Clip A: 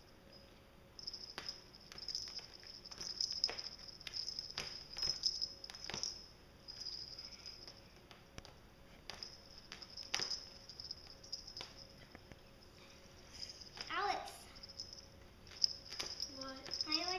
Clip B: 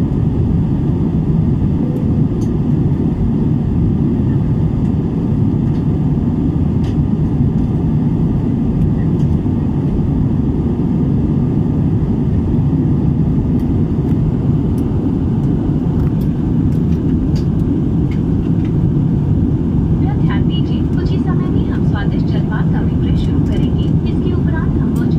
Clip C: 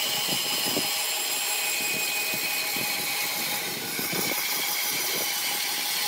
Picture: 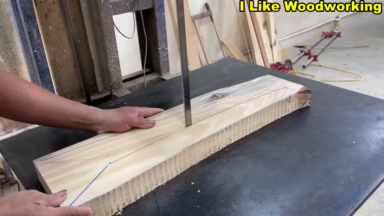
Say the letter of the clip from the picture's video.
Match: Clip C